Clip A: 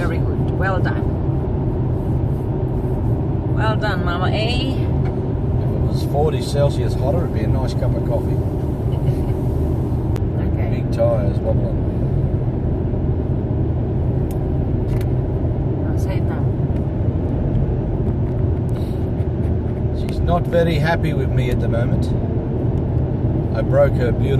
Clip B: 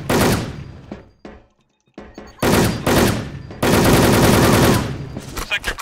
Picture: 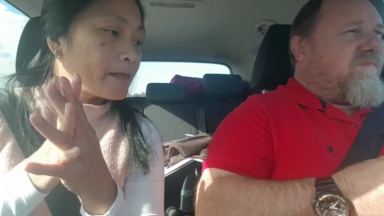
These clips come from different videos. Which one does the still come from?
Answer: A